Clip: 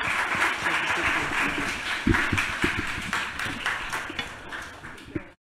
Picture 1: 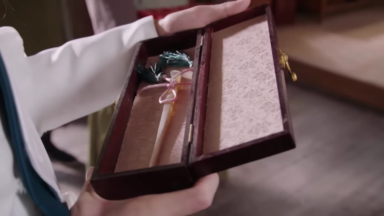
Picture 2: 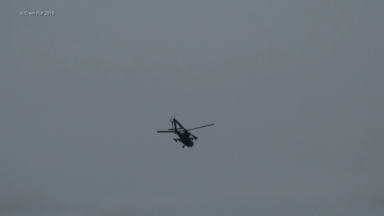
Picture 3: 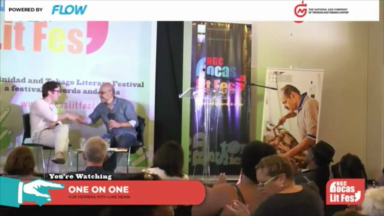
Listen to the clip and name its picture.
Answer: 3